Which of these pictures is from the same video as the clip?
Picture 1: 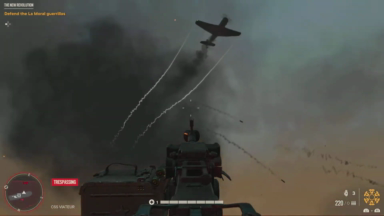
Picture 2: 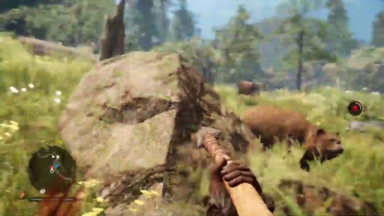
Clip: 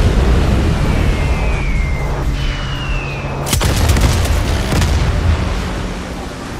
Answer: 1